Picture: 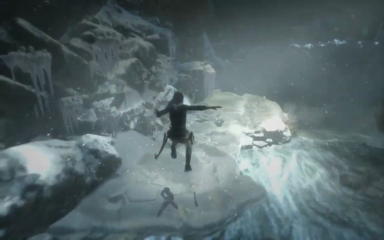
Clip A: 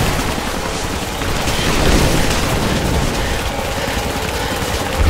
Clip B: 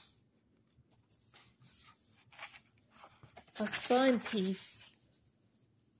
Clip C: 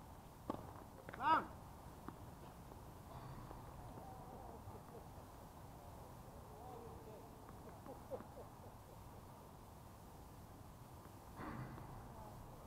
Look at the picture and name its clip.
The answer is A